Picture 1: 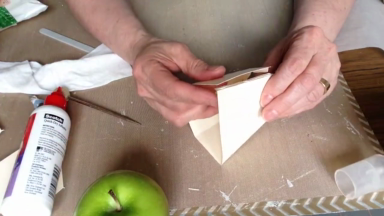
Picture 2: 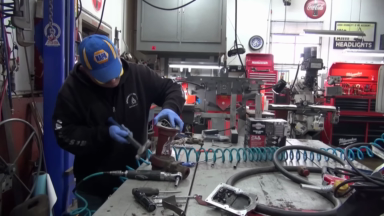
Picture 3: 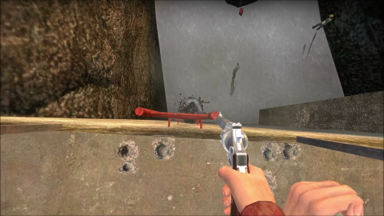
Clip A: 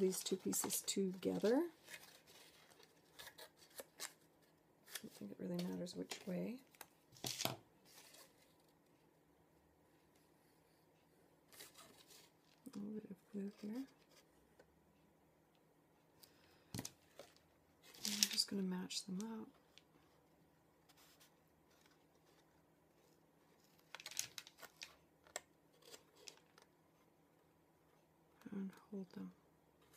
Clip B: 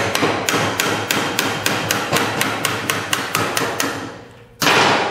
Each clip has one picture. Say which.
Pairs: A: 1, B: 2